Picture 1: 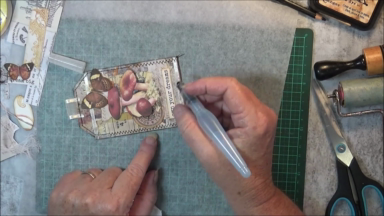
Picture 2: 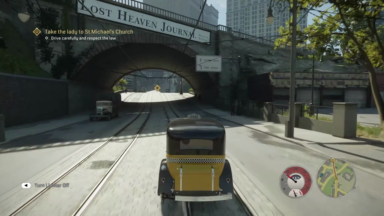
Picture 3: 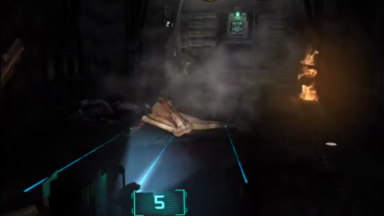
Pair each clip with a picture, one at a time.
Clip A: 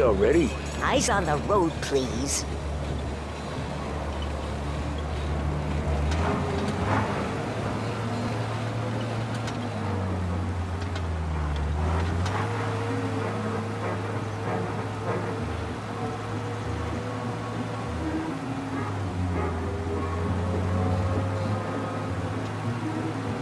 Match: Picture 2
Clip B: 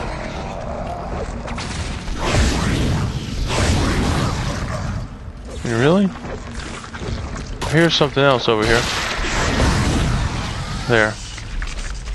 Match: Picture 3